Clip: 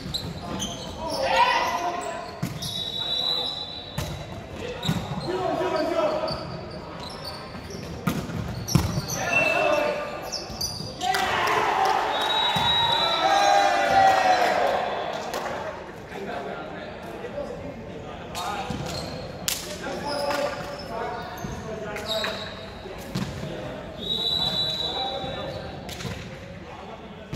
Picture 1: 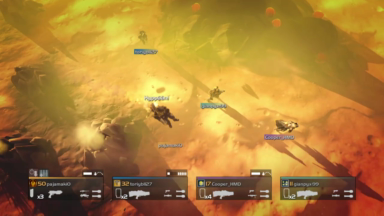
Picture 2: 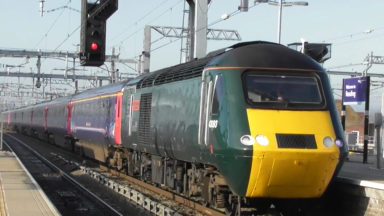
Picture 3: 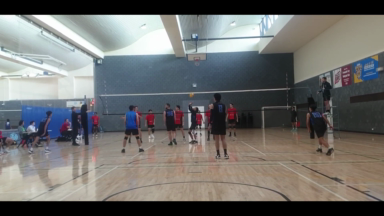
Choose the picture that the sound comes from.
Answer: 3